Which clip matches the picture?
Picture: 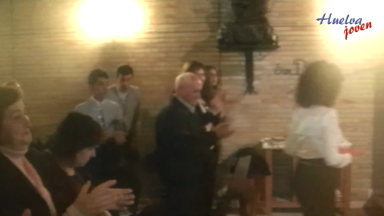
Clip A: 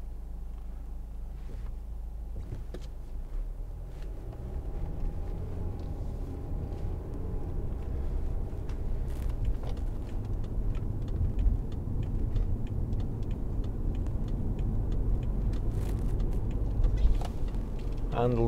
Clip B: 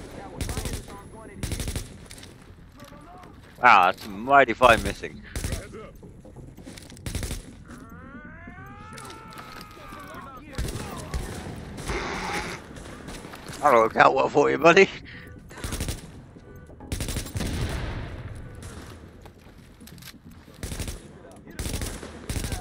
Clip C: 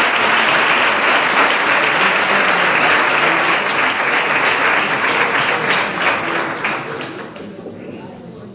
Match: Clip C